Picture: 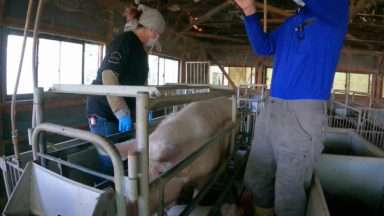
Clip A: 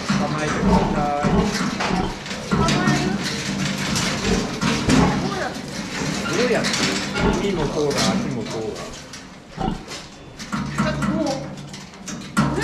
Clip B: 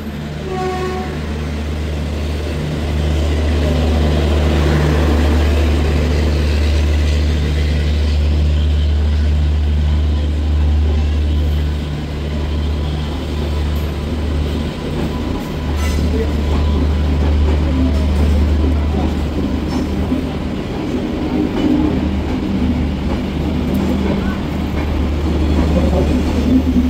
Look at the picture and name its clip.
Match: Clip A